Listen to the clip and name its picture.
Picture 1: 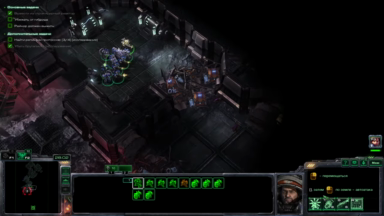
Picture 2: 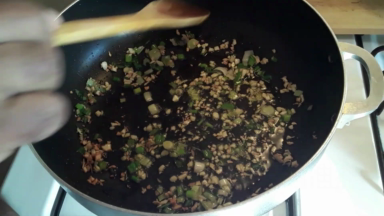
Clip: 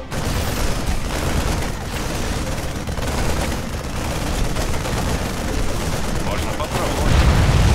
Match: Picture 1